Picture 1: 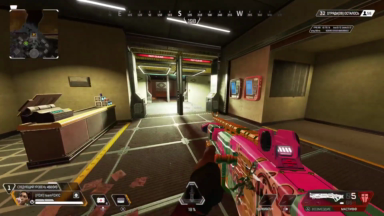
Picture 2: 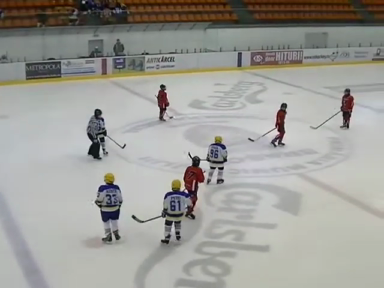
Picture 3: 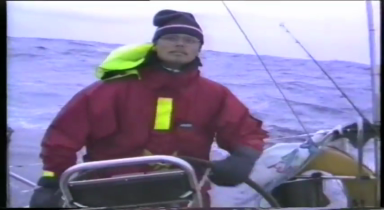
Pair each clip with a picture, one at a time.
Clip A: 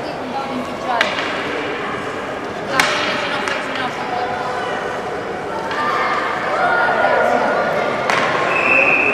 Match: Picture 2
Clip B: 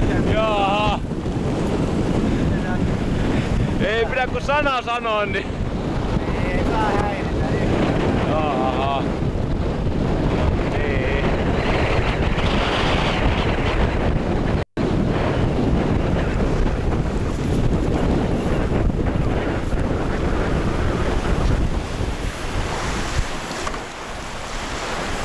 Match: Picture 3